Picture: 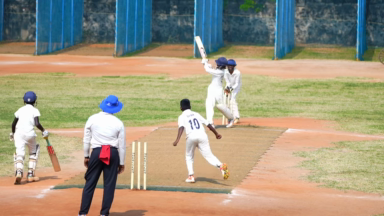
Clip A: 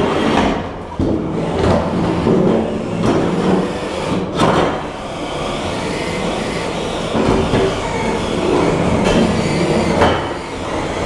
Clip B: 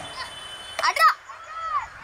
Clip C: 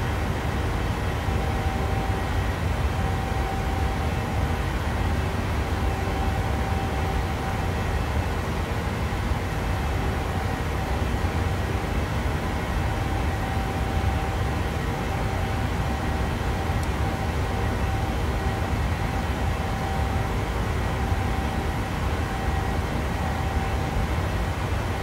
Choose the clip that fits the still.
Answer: B